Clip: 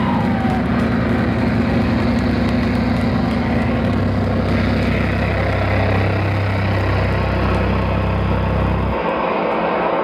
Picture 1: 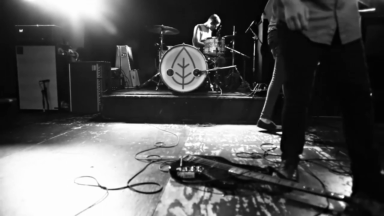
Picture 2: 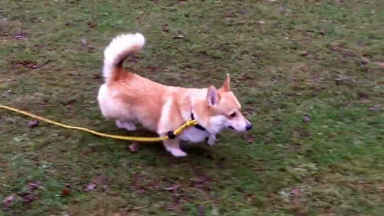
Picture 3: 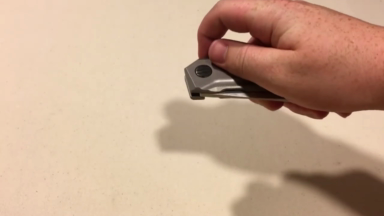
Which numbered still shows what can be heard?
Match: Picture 1